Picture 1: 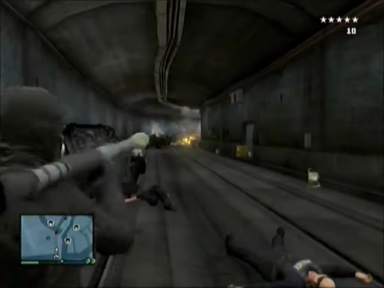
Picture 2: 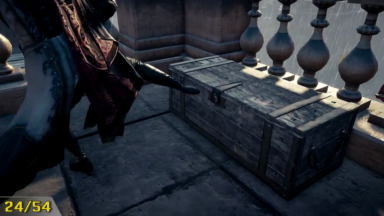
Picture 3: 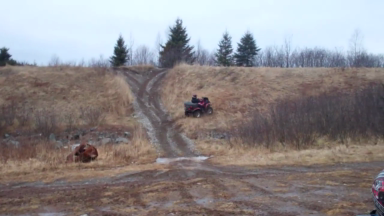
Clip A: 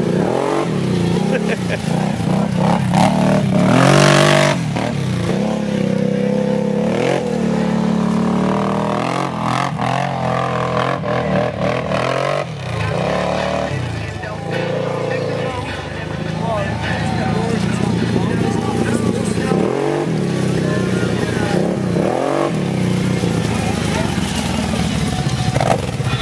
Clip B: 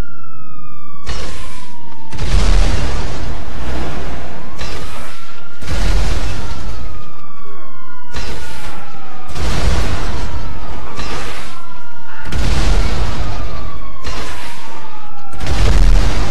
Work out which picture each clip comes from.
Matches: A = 3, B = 1